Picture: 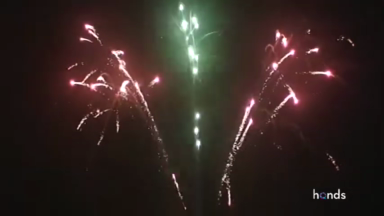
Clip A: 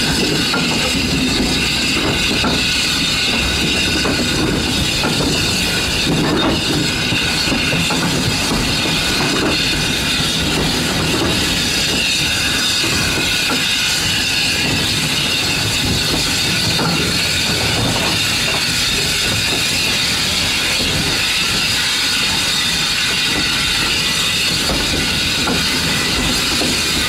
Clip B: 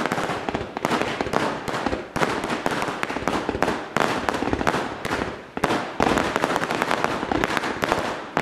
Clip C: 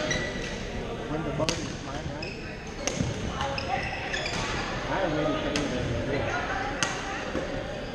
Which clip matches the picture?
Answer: B